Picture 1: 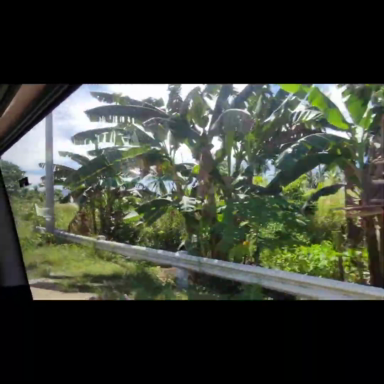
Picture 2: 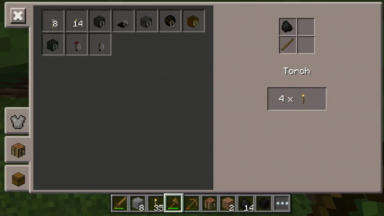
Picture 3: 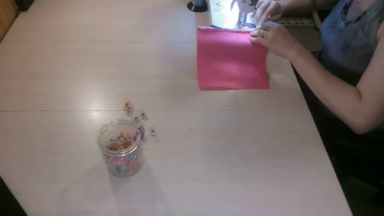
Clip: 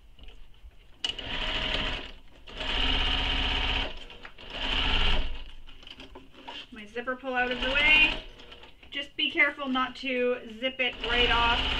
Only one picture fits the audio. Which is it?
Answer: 3